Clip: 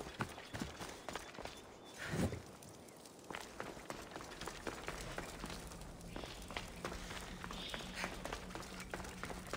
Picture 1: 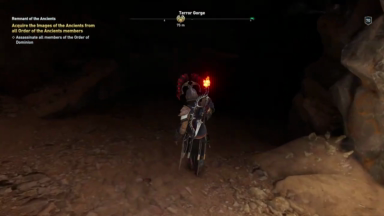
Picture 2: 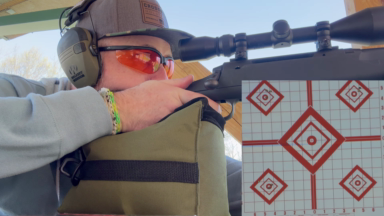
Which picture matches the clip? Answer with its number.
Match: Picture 1